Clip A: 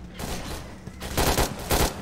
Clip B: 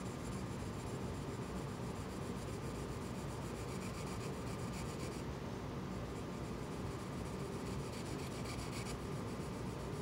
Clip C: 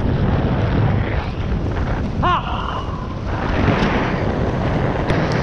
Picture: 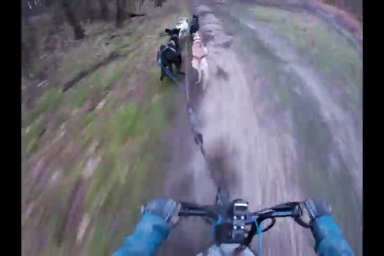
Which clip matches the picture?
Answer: C